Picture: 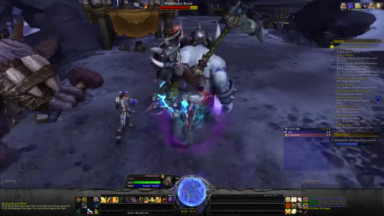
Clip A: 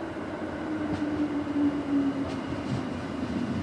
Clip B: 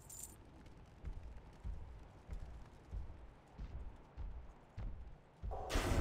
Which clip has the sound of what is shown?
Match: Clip B